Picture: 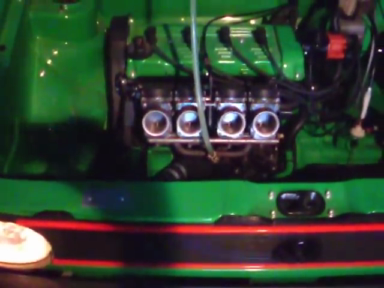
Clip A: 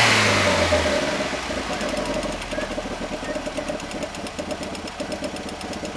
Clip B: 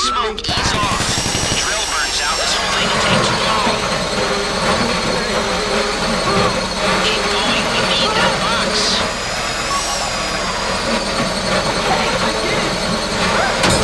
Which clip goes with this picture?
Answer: A